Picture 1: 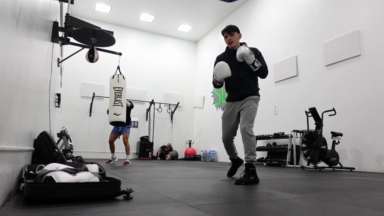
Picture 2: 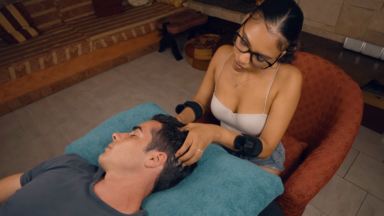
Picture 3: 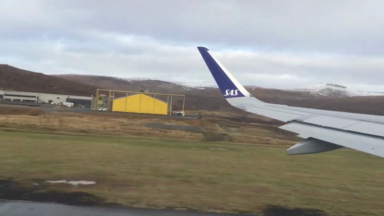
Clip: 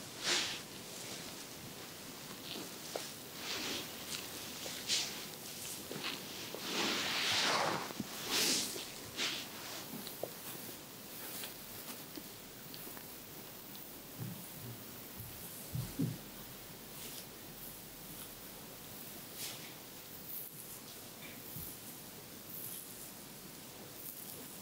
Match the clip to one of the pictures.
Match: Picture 2